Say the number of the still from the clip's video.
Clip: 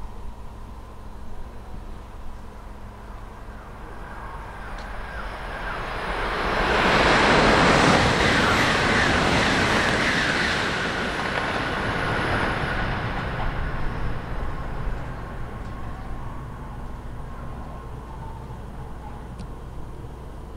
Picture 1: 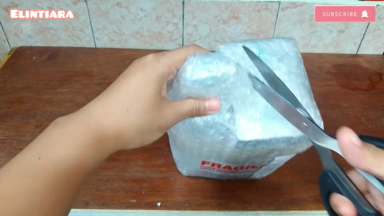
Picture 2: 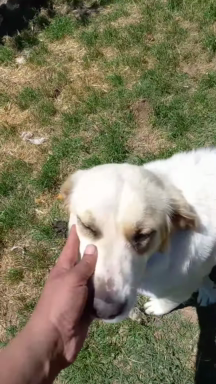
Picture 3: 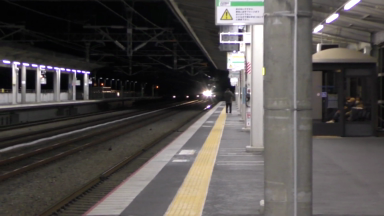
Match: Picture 3